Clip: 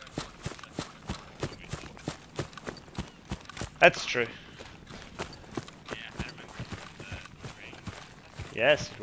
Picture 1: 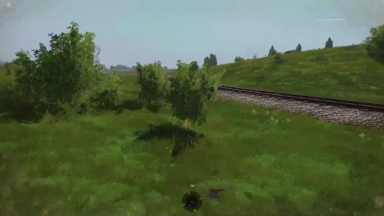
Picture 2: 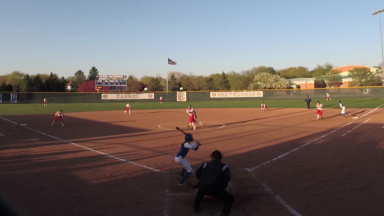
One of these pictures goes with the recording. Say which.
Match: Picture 1